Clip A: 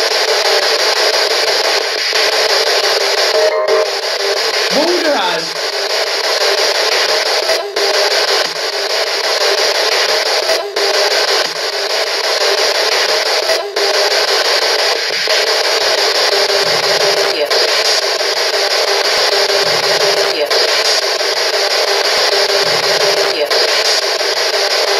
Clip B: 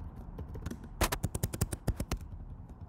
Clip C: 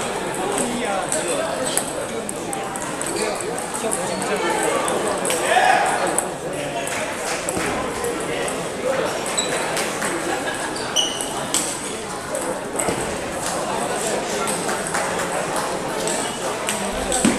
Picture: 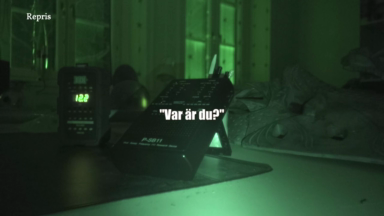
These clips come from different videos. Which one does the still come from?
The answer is A